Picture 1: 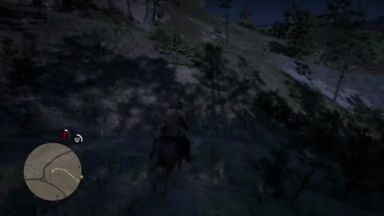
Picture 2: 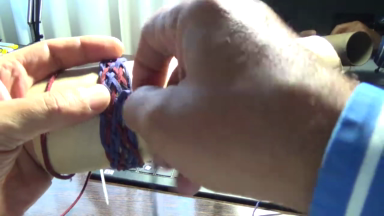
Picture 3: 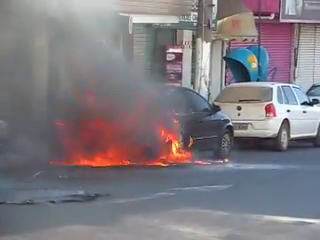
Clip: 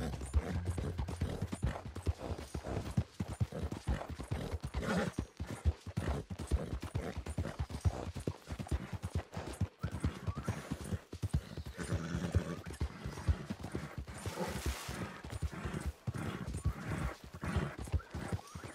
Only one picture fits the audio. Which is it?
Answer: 1